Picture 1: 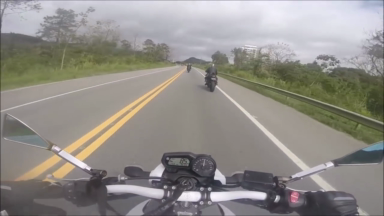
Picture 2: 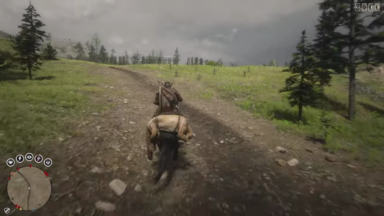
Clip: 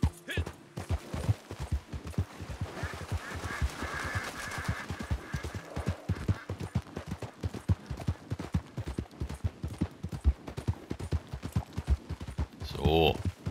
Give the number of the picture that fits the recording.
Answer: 2